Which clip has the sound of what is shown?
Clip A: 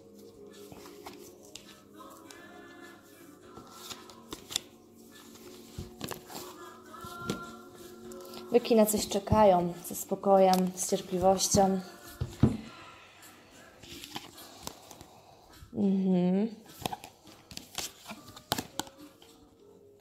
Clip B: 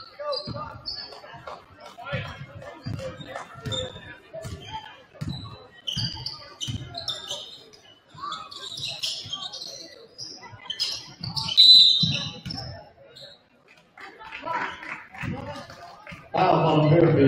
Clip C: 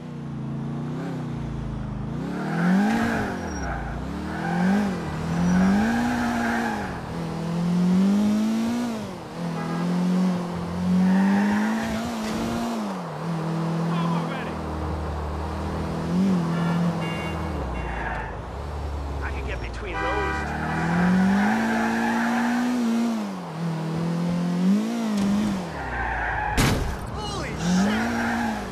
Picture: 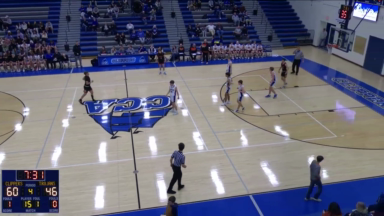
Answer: B